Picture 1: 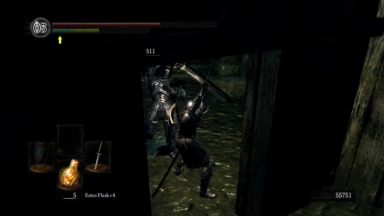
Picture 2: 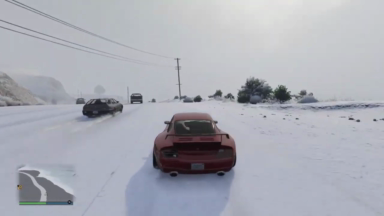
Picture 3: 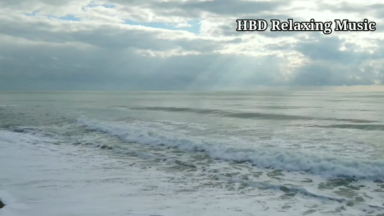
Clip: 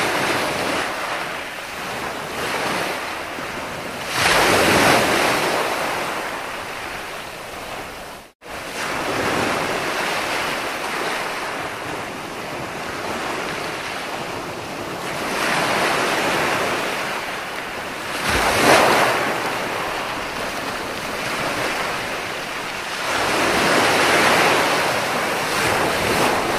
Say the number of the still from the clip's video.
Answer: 3